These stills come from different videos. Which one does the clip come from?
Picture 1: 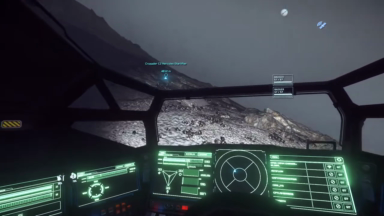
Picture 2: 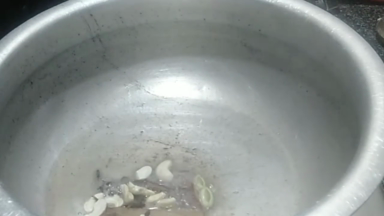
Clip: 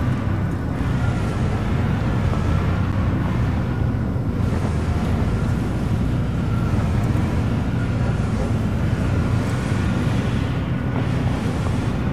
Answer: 1